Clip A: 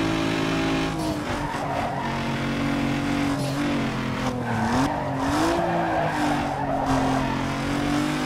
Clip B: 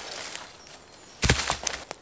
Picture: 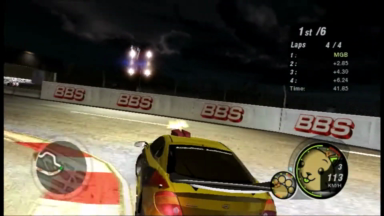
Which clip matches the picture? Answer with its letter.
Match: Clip A